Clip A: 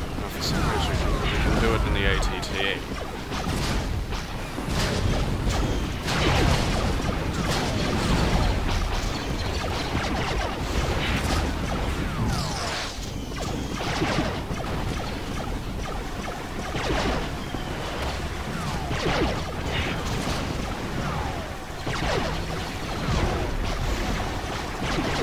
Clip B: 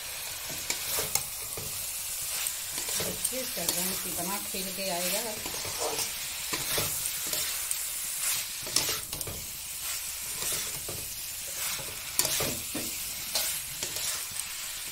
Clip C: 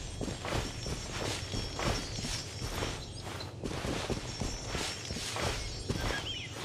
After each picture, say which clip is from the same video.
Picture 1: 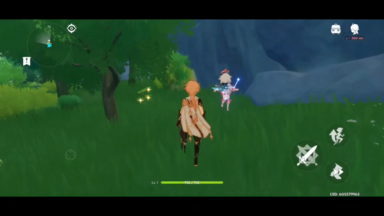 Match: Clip C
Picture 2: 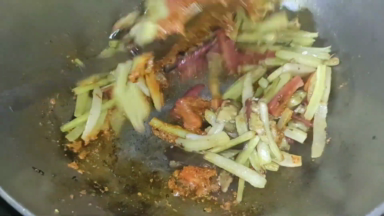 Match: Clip B